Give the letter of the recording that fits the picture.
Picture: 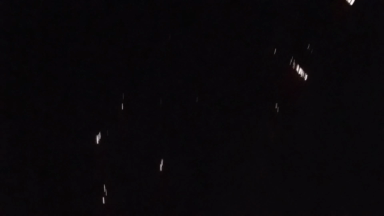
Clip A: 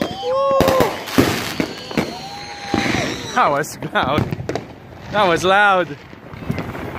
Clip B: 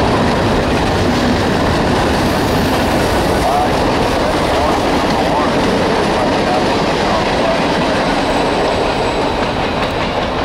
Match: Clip A